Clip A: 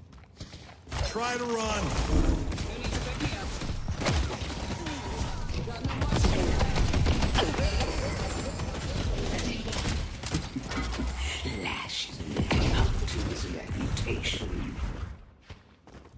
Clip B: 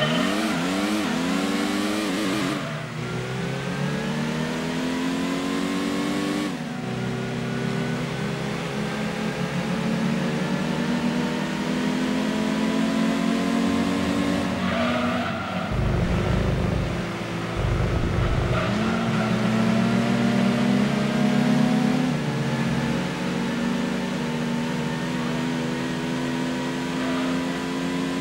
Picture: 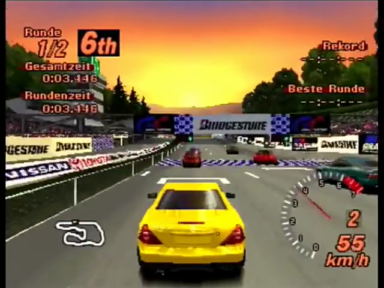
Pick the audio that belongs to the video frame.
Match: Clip B